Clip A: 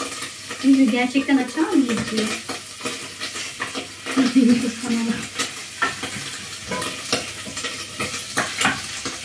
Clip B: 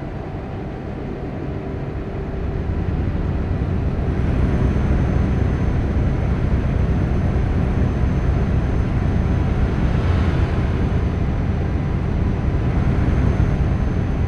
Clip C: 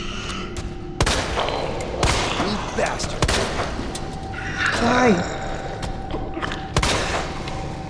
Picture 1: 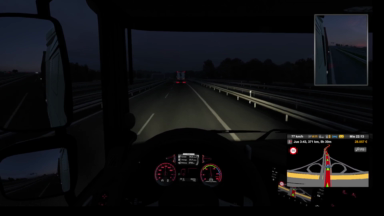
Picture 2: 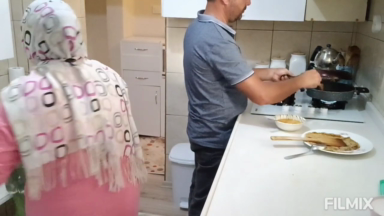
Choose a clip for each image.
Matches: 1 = B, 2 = A